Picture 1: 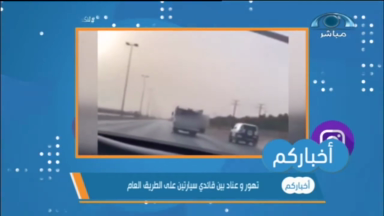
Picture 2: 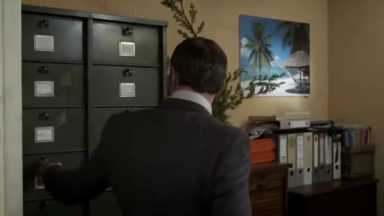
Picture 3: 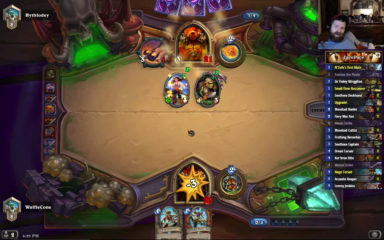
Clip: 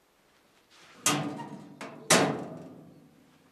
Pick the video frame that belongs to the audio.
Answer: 2